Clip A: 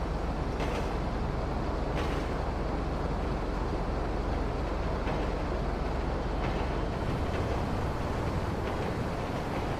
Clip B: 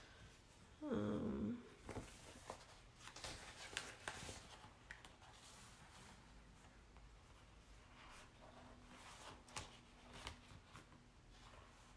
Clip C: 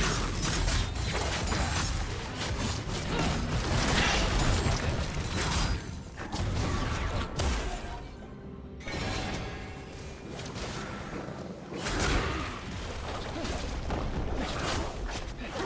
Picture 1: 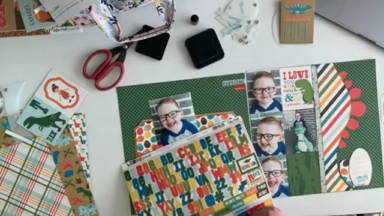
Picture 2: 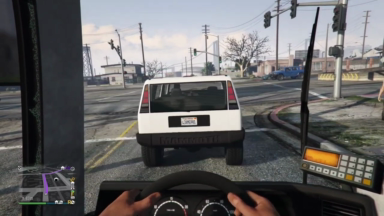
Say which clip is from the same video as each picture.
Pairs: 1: B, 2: A